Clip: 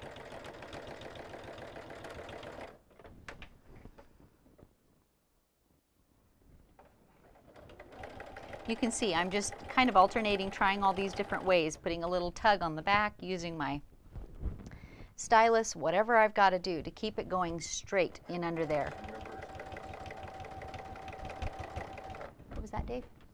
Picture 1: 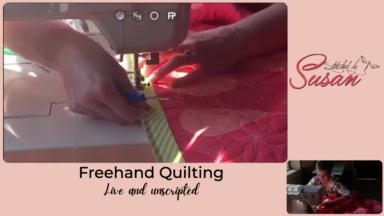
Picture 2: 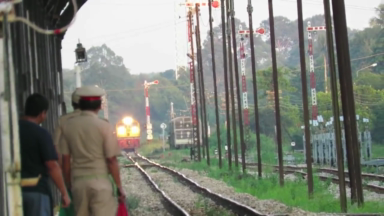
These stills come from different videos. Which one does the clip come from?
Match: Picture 1